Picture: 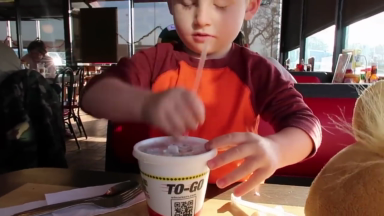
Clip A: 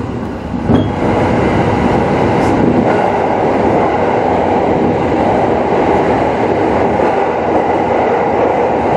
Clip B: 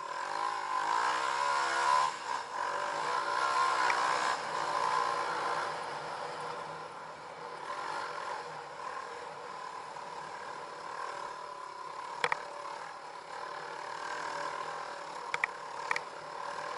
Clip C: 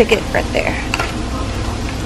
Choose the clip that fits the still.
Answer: C